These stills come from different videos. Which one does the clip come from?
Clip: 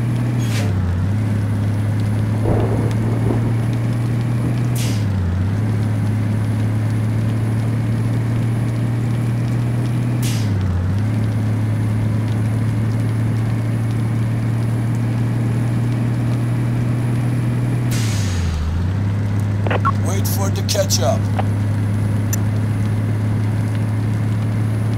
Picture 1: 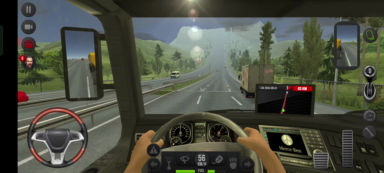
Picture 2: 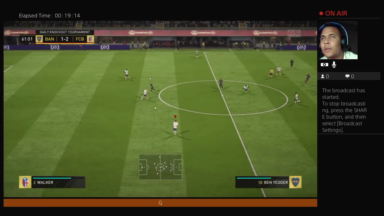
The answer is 1